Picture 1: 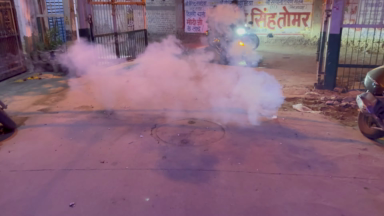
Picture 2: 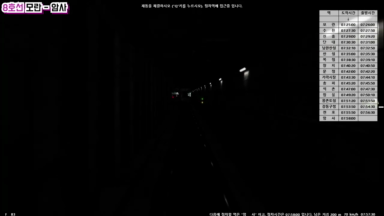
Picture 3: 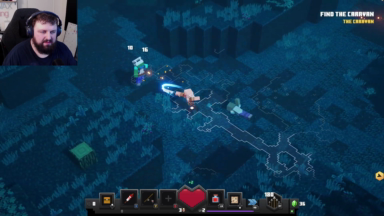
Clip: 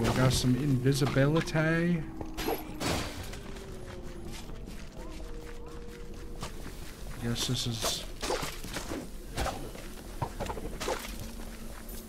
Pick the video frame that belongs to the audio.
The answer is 3